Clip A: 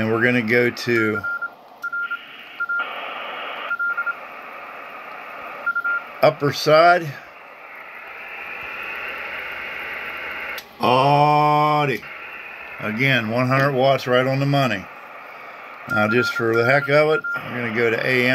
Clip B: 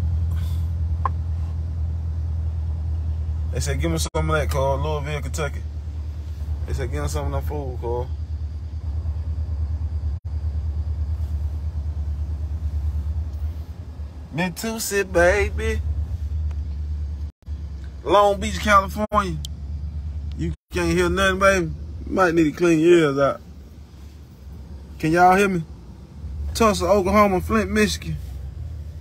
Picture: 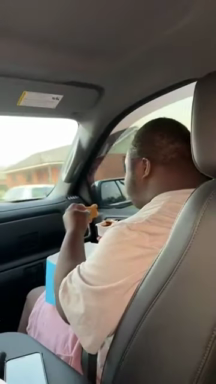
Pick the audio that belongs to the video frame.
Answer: B